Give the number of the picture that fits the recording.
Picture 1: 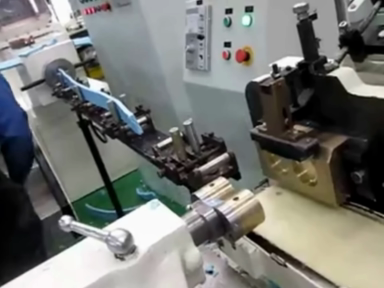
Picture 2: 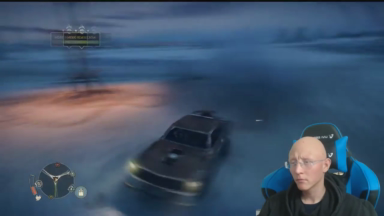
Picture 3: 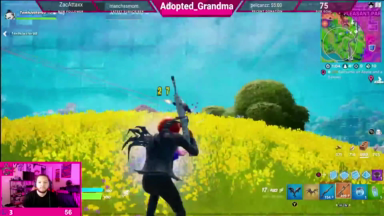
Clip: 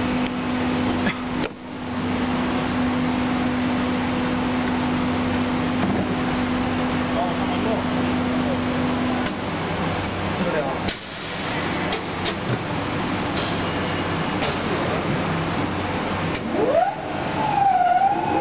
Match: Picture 1